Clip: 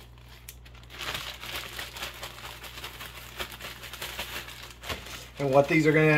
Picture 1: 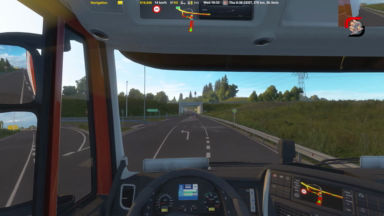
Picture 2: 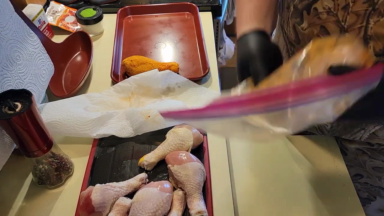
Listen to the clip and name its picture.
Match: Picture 2